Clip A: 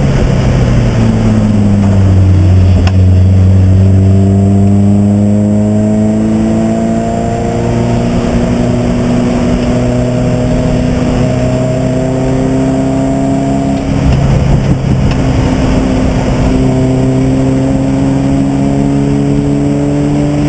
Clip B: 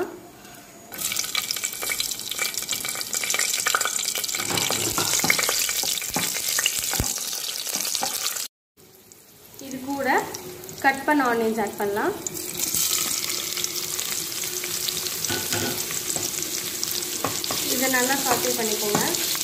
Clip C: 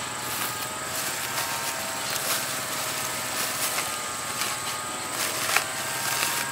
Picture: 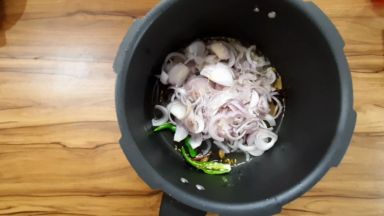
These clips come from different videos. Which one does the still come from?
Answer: B